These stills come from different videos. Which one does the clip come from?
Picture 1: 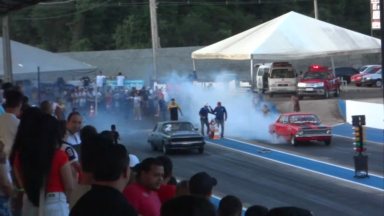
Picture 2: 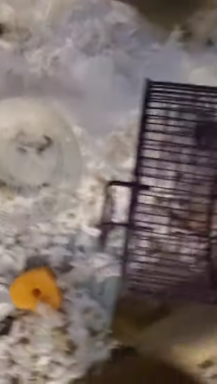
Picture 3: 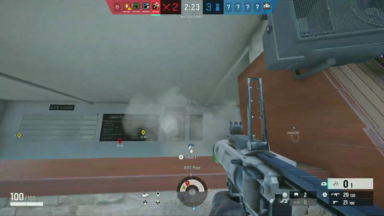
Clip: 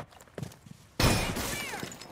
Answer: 3